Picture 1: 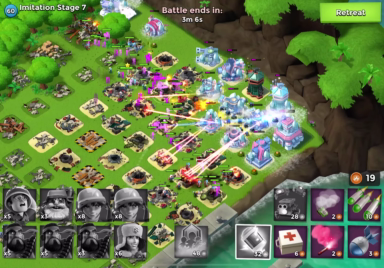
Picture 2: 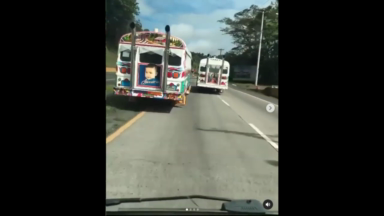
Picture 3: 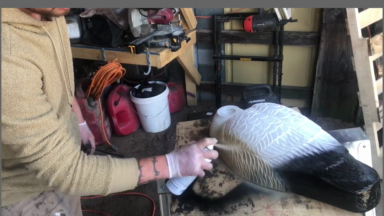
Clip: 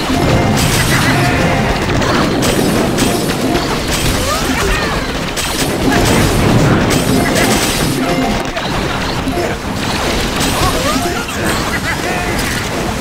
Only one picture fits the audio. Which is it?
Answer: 1